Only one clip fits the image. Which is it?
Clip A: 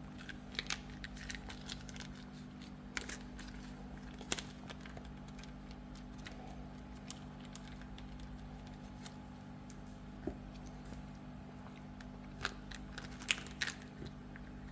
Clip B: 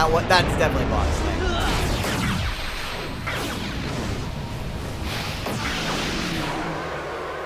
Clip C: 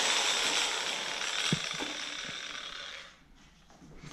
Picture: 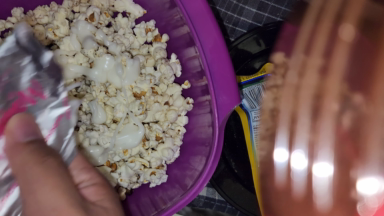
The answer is A